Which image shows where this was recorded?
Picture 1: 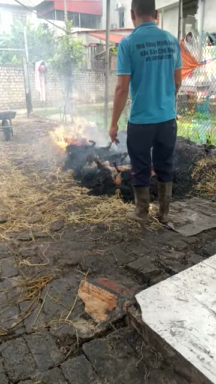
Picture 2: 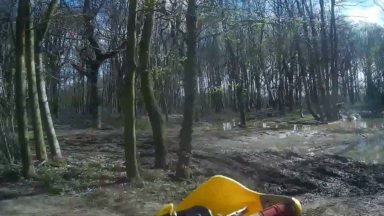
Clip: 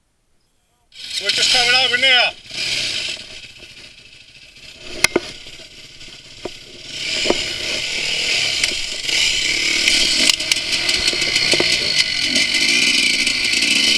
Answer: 2